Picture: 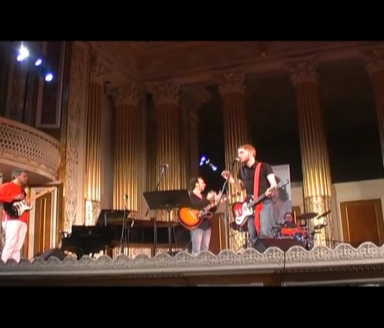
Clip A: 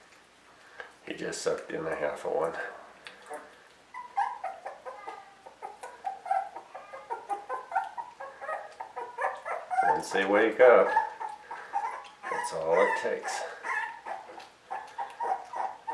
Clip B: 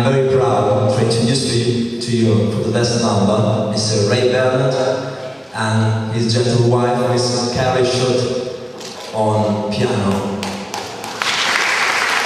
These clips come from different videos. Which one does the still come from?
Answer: B